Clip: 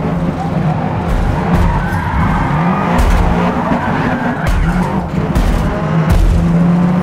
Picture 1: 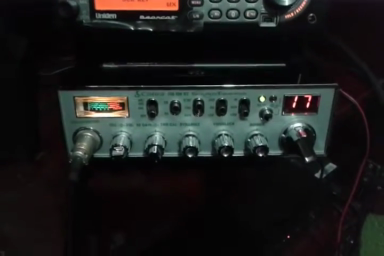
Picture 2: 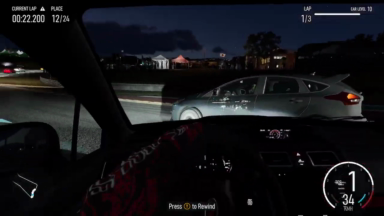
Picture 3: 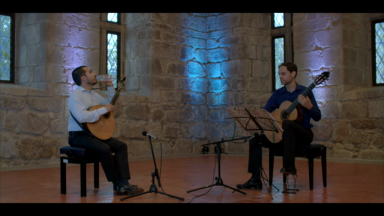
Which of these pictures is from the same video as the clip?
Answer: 2